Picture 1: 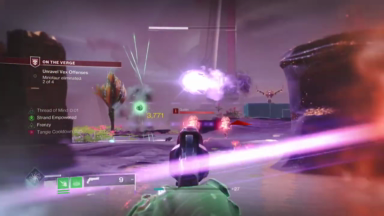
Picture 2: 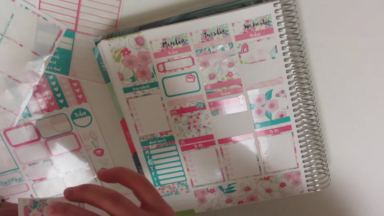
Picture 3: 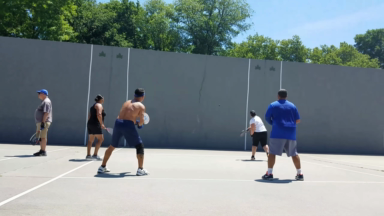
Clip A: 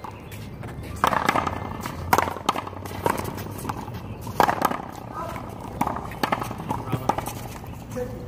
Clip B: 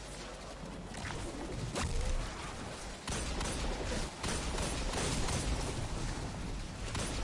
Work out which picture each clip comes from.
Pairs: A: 3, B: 1